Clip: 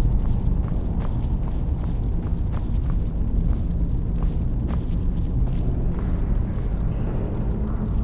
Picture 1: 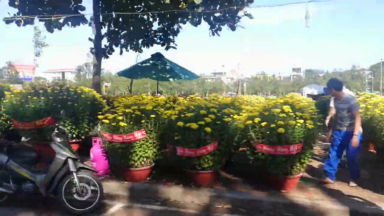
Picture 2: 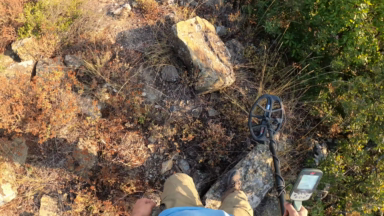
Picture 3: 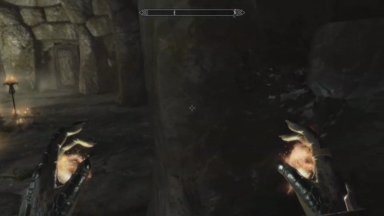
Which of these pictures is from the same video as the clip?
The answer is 3